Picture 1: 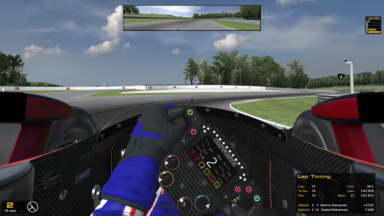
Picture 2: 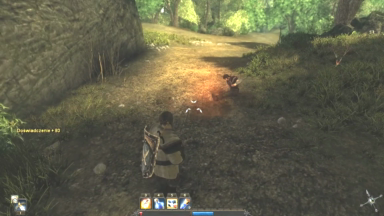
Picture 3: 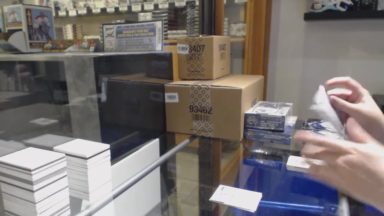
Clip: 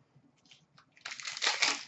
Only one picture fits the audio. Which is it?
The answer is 3